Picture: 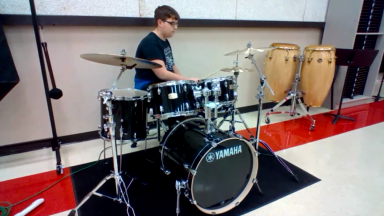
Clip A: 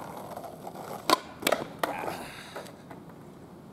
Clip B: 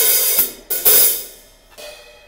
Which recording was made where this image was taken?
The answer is B